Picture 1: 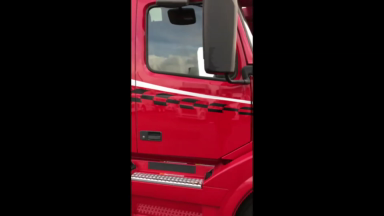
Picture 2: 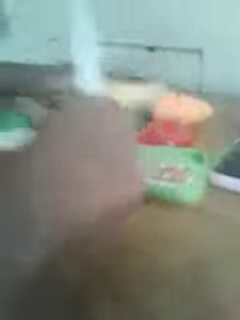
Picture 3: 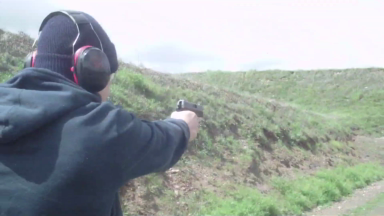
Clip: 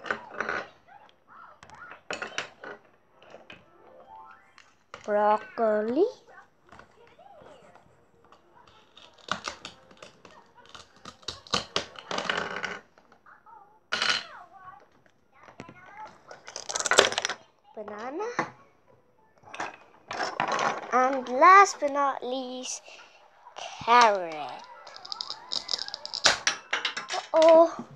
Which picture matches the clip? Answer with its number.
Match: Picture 2